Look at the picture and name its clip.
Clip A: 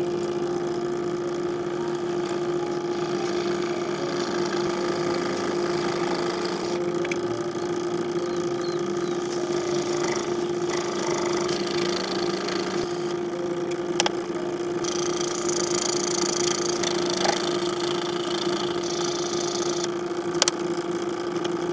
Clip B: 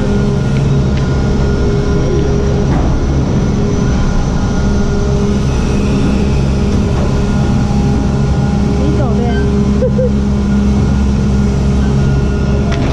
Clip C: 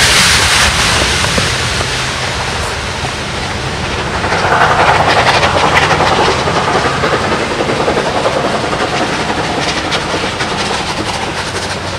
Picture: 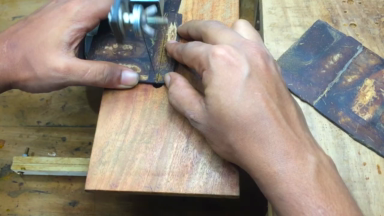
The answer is A